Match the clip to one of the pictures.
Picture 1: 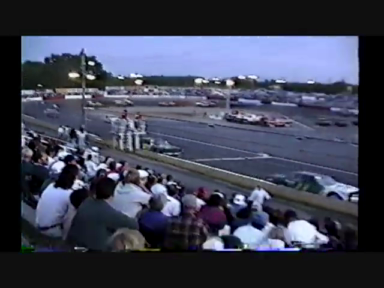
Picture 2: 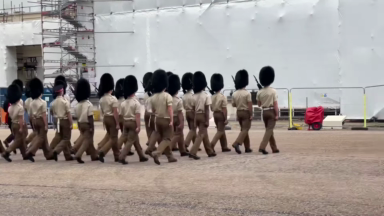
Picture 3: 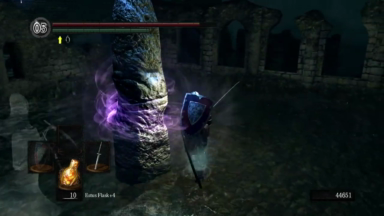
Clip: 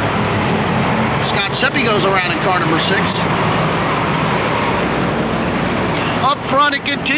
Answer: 1